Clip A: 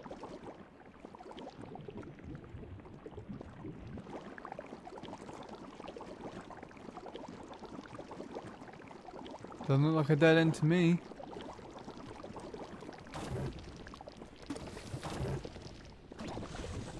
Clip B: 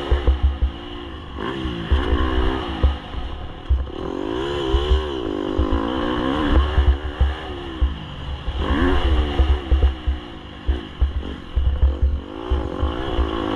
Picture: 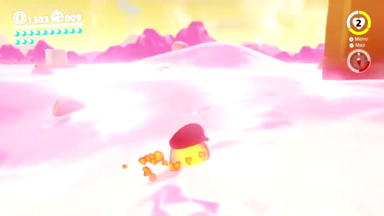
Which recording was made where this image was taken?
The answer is A